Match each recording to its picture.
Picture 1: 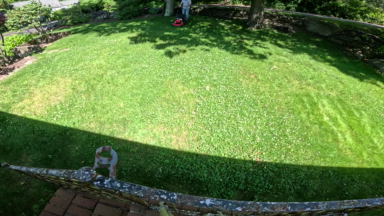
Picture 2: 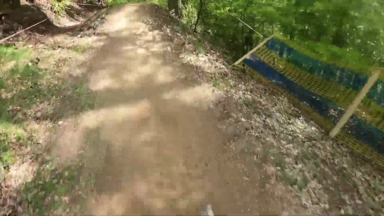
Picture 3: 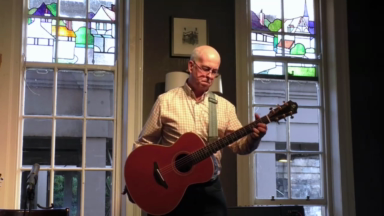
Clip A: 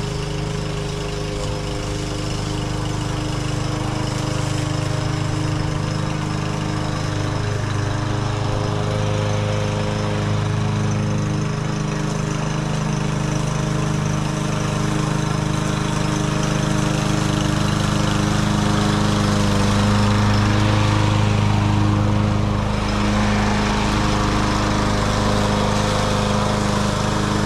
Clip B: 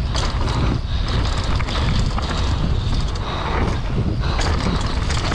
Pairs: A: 1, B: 2